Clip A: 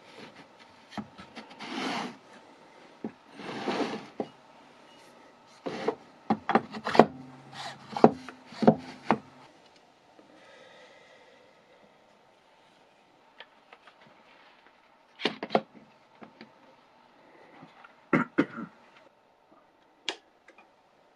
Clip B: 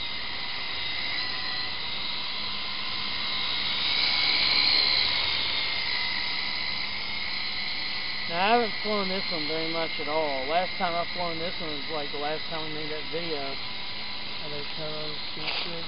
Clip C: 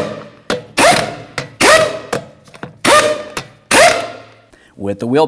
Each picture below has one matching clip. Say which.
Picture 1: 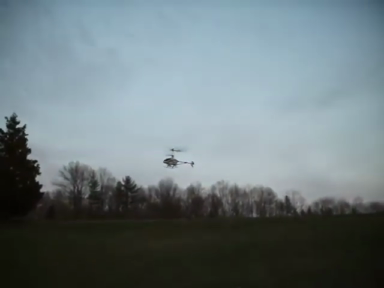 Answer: B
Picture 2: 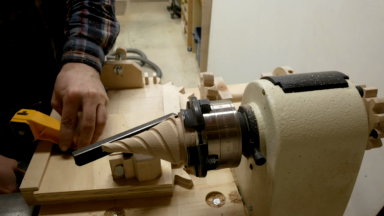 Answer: A